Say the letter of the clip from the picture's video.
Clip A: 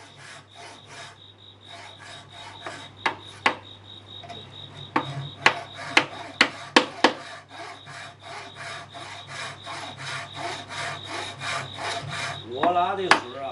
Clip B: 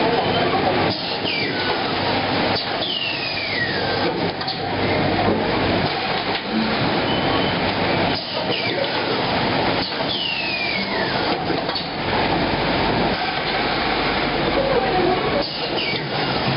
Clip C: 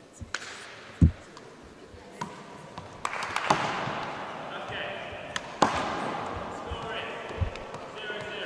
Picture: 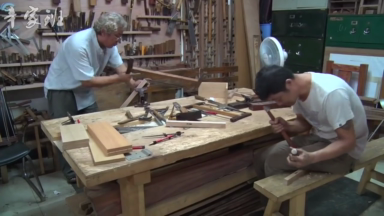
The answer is A